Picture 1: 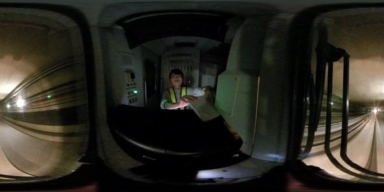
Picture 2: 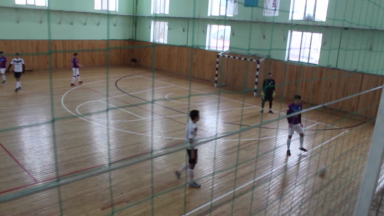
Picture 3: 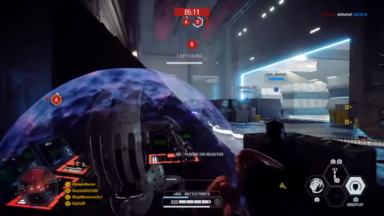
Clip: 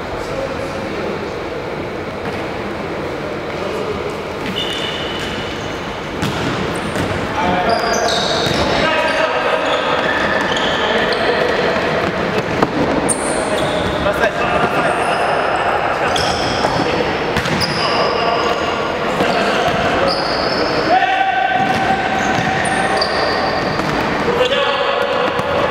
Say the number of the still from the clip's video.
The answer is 2